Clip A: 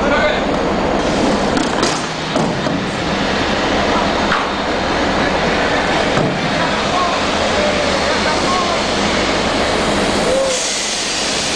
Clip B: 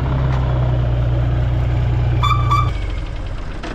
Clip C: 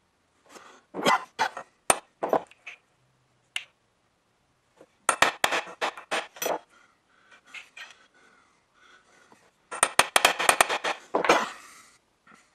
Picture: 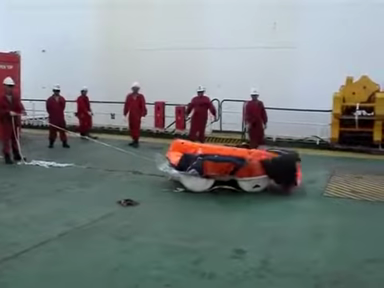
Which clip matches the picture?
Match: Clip A